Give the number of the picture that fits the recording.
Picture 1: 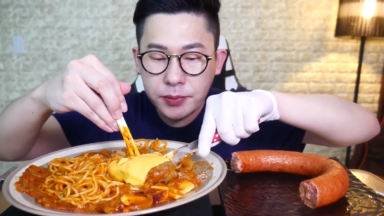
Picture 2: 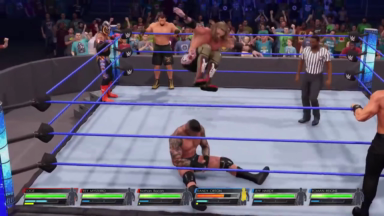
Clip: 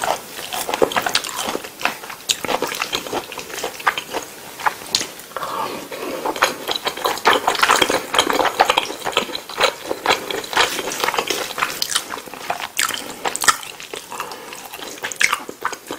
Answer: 1